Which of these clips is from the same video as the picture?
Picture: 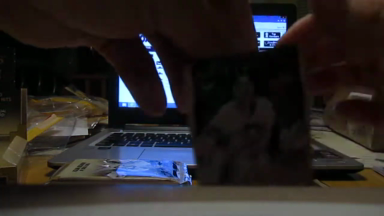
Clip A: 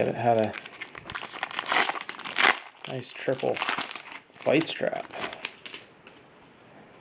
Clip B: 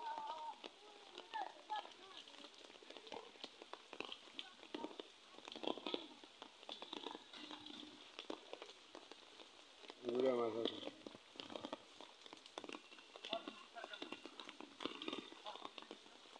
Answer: A